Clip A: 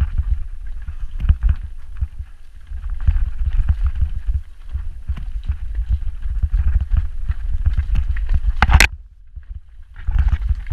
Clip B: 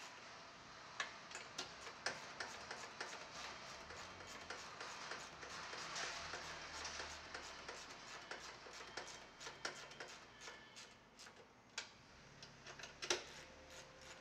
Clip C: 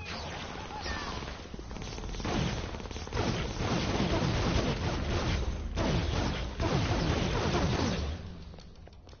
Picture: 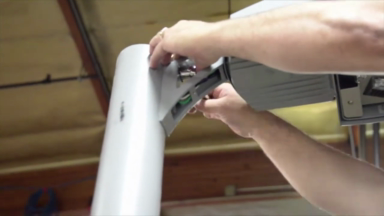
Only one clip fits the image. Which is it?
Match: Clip B